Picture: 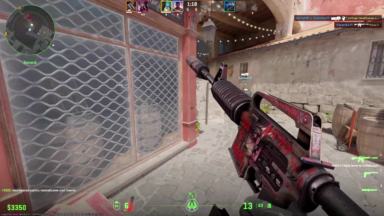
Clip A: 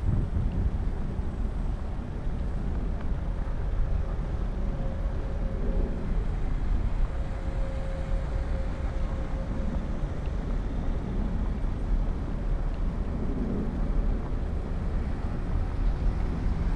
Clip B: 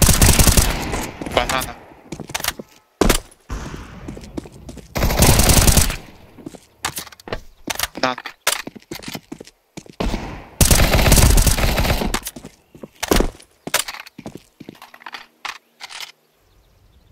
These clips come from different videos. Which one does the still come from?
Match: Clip B